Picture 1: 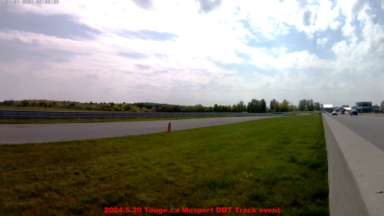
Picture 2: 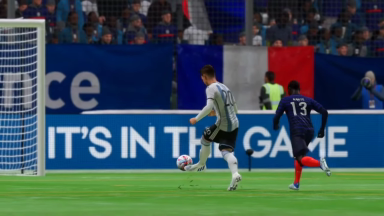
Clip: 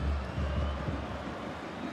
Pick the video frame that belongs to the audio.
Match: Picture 2